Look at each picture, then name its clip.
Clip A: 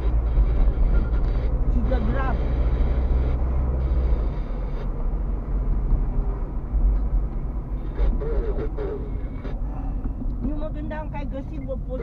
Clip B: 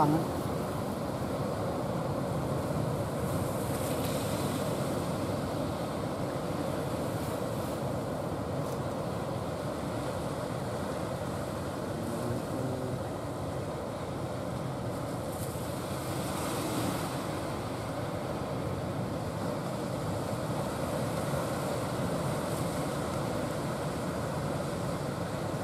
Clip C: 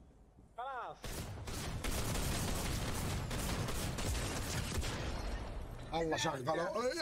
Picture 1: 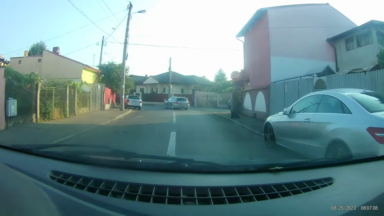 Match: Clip A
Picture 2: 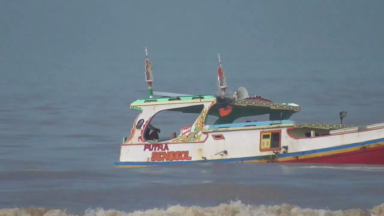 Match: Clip B